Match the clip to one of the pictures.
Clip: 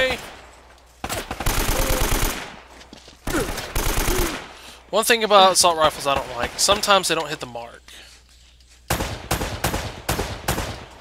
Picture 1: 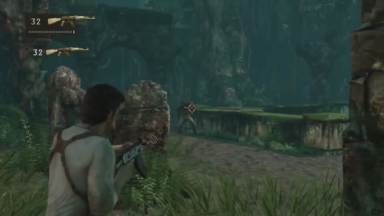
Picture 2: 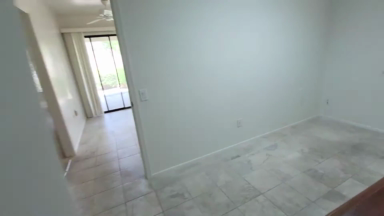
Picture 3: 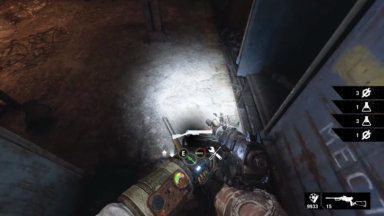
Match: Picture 1